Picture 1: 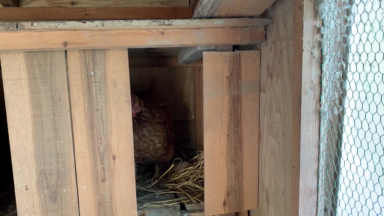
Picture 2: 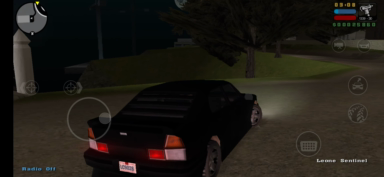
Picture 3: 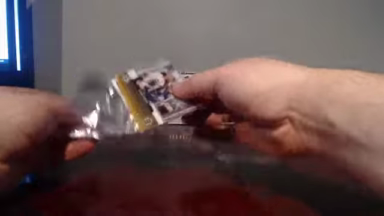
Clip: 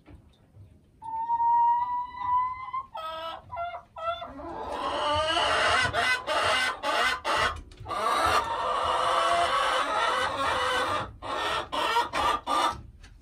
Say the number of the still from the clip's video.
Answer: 1